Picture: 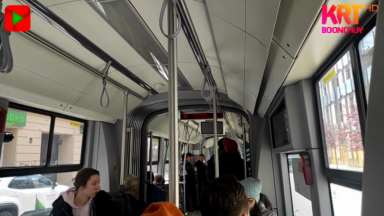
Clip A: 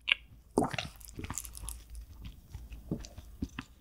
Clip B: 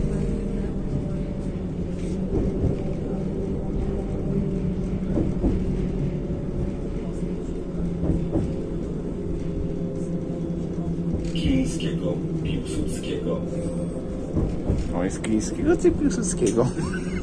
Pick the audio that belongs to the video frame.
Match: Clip B